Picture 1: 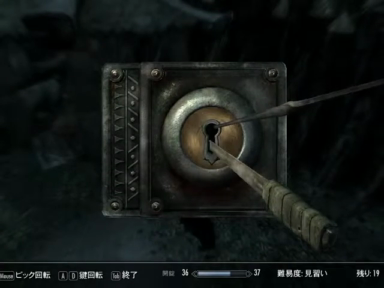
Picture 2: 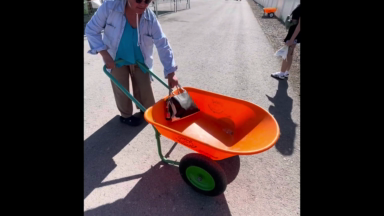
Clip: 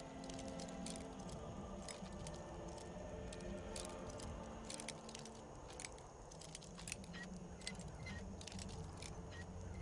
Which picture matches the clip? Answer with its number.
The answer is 1